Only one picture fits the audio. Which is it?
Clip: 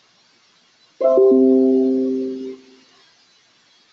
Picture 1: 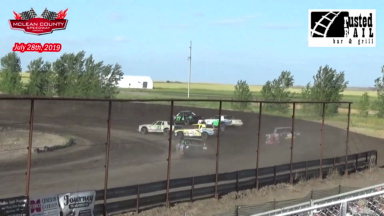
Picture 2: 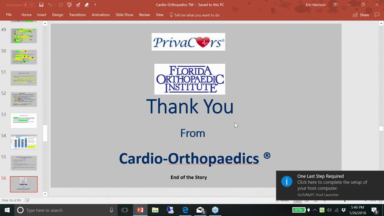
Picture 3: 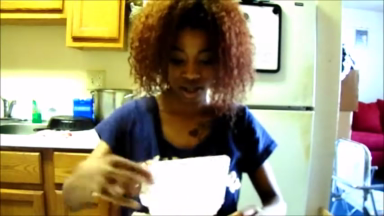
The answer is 2